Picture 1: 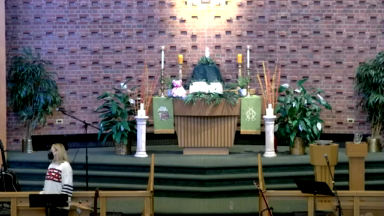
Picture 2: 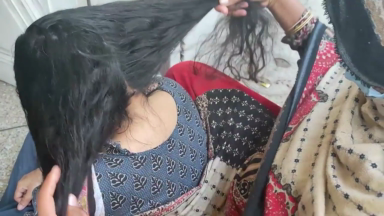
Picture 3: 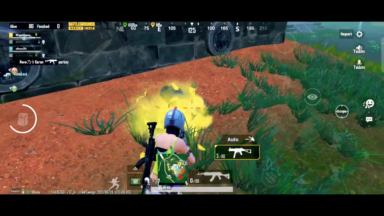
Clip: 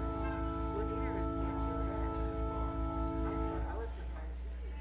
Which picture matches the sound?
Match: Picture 1